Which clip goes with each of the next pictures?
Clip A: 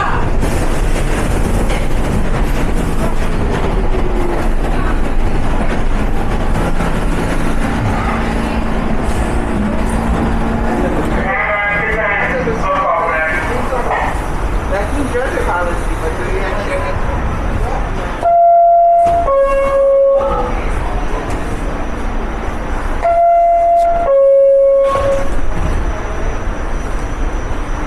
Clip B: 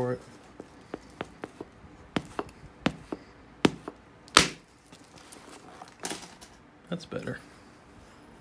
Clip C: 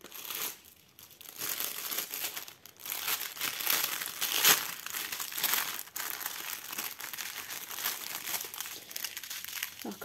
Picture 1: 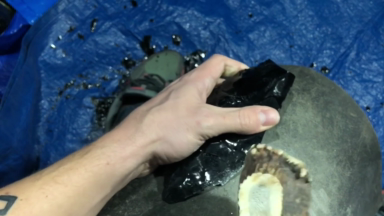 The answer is B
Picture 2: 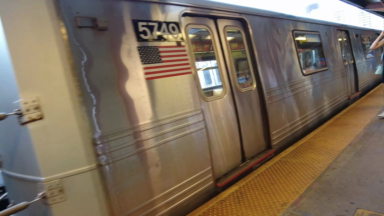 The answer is A